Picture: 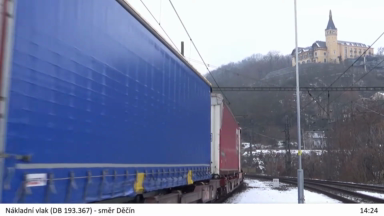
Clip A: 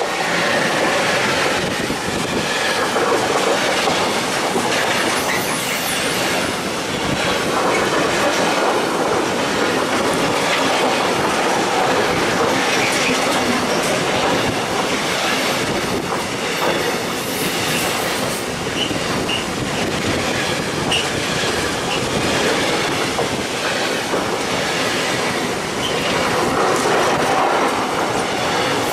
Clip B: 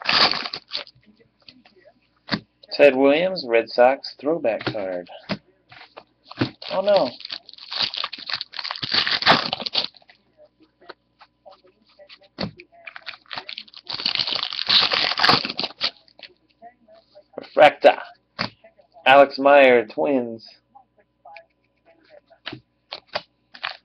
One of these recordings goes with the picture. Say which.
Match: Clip A